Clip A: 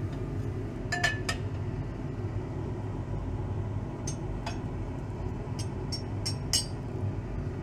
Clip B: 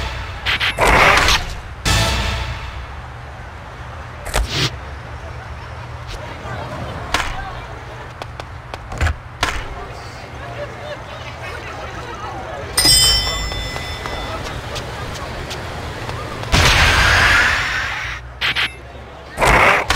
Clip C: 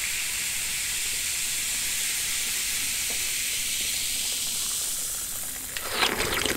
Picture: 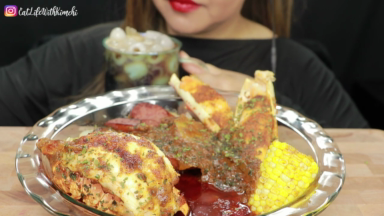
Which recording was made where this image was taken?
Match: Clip C